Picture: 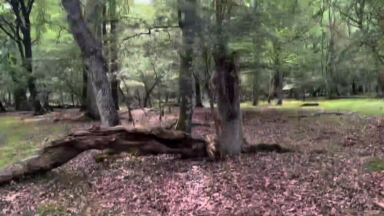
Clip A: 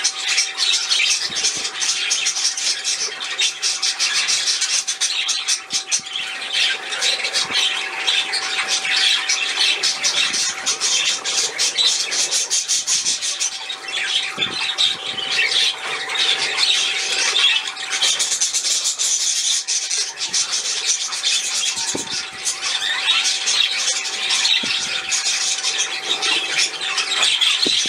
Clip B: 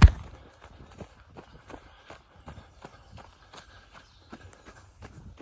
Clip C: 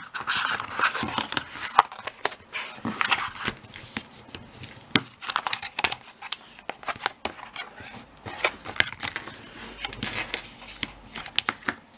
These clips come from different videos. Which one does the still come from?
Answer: B